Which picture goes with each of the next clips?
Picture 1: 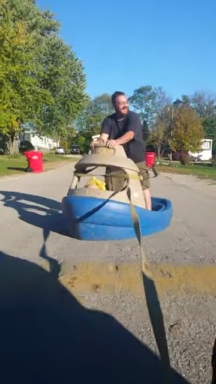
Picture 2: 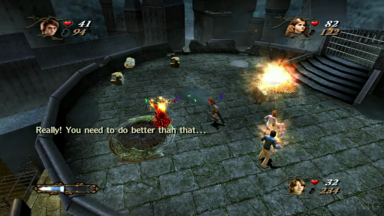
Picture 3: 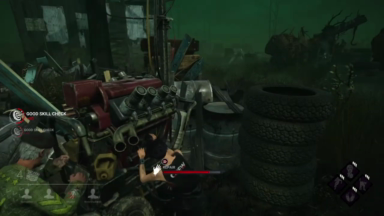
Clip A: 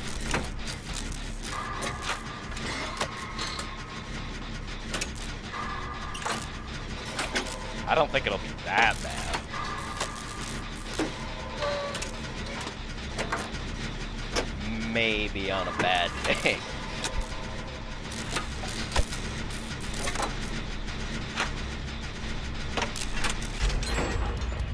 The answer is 3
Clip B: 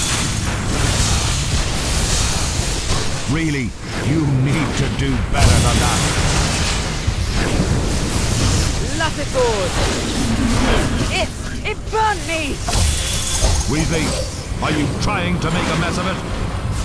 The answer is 2